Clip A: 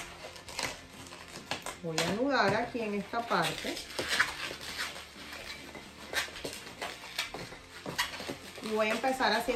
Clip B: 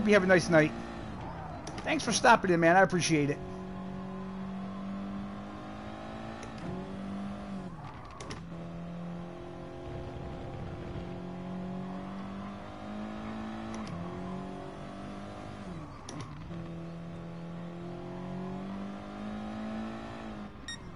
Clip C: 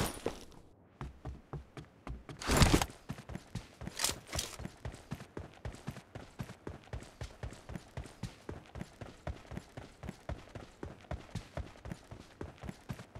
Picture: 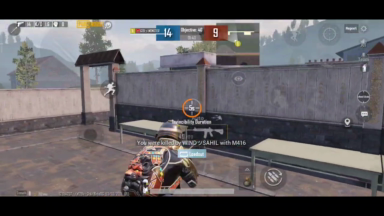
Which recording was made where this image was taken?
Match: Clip C